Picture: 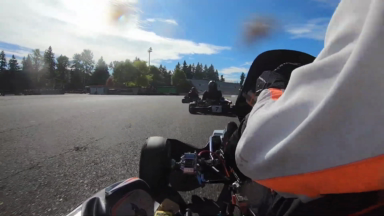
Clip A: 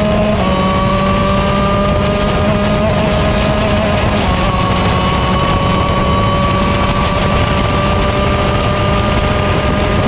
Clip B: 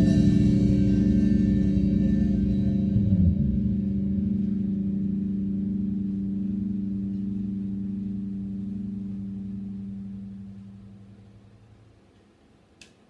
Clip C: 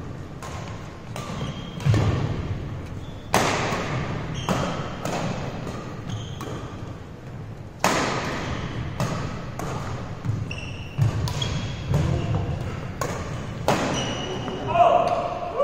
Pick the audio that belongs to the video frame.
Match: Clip A